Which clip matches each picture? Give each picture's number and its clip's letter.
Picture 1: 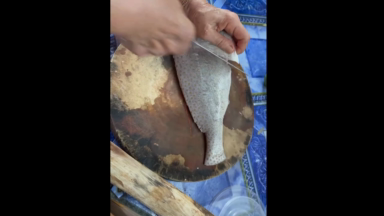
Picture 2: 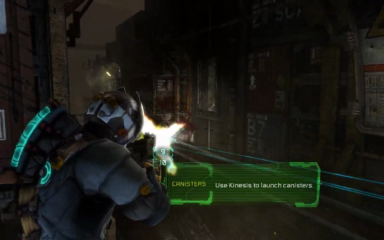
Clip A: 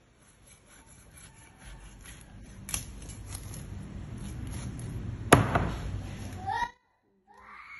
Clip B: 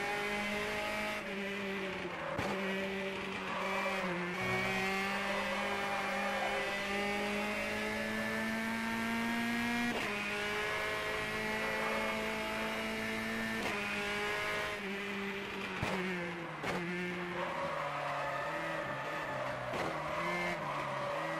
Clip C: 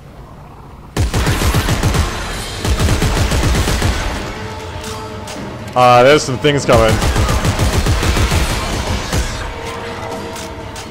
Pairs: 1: A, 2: C